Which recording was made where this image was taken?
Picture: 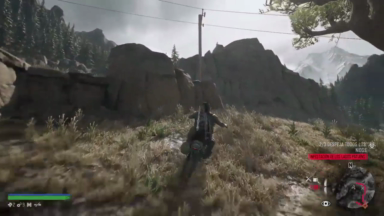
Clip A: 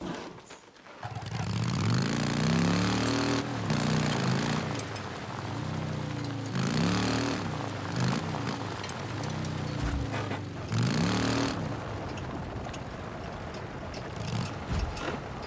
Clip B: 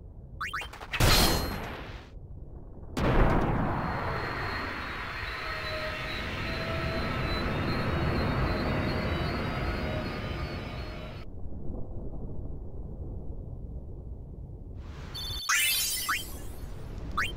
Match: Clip A